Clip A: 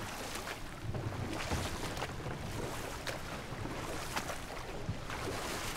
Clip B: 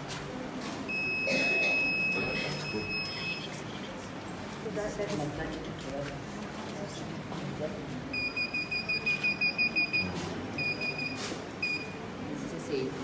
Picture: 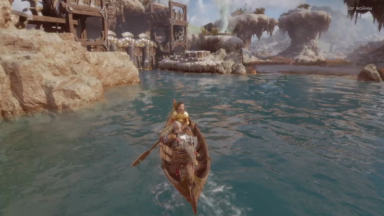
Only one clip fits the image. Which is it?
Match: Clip A